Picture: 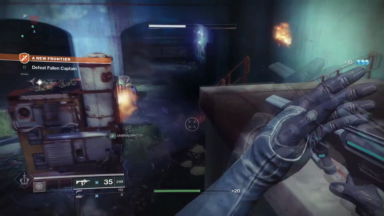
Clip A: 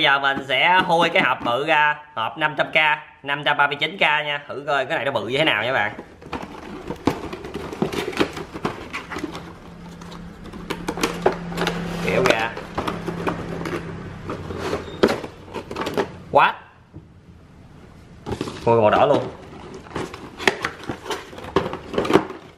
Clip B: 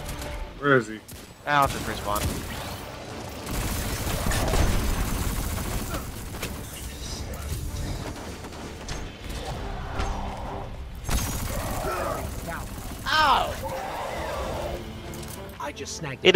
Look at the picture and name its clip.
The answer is B